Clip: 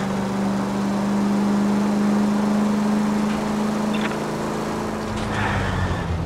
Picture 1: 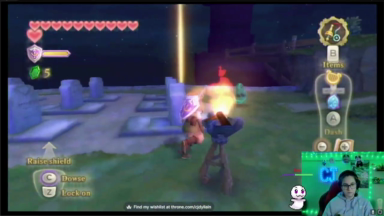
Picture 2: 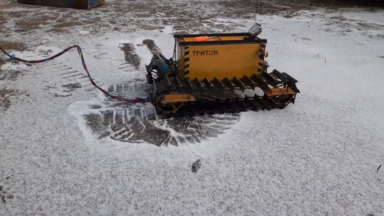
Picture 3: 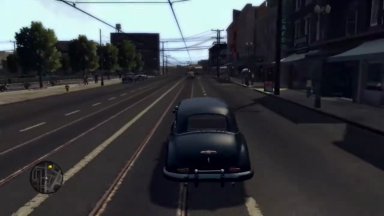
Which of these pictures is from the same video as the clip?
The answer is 3